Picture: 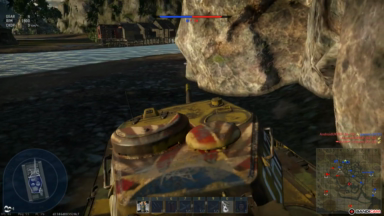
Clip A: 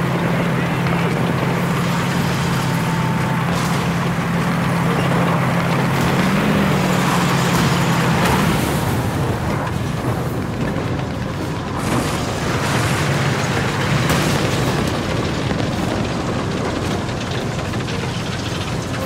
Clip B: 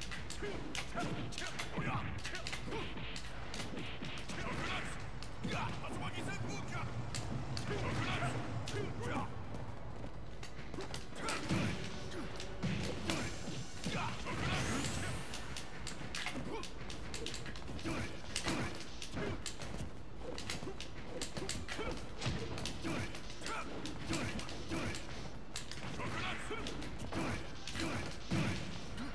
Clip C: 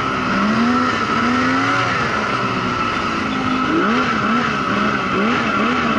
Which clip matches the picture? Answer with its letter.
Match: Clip A